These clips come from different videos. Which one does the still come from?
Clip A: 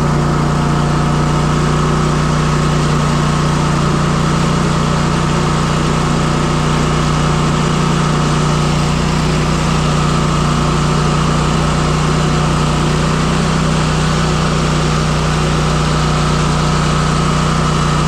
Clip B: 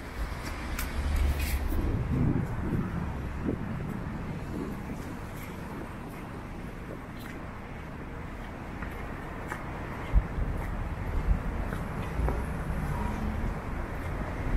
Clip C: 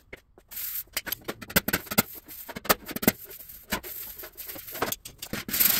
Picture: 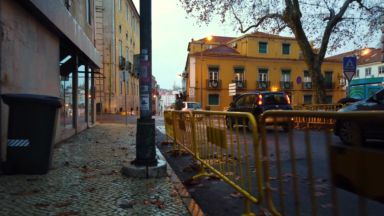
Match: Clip B